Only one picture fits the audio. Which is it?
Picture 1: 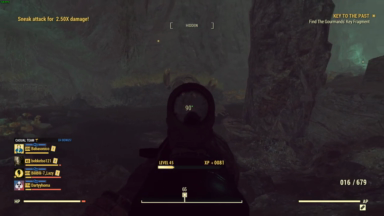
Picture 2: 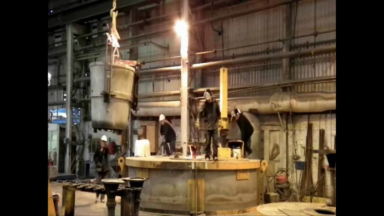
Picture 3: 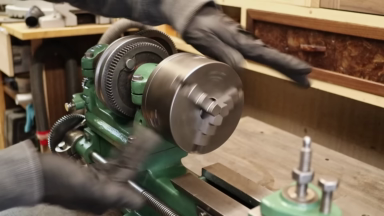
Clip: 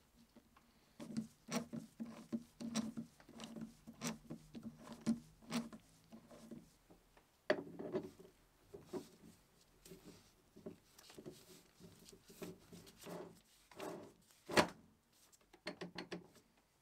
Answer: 3